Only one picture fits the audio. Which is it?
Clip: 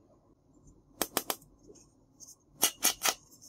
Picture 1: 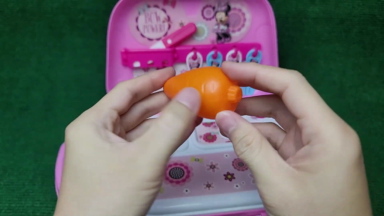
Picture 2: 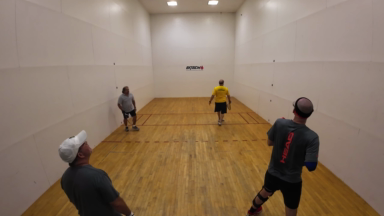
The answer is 1